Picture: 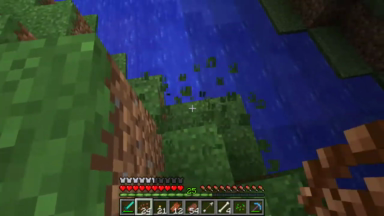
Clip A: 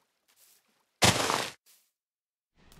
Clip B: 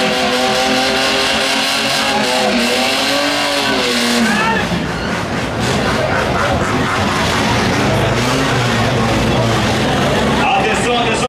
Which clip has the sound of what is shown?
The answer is A